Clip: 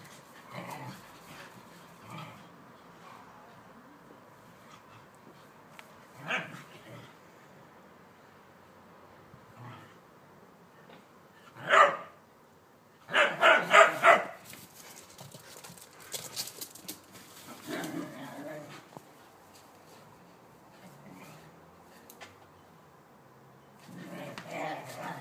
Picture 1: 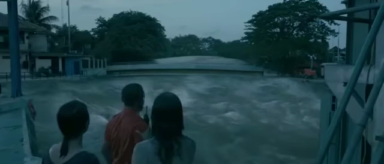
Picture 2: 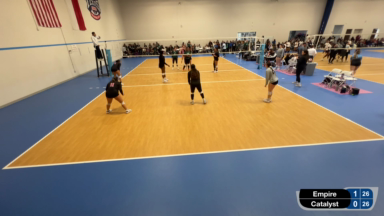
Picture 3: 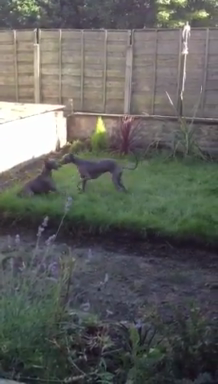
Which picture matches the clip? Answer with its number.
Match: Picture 3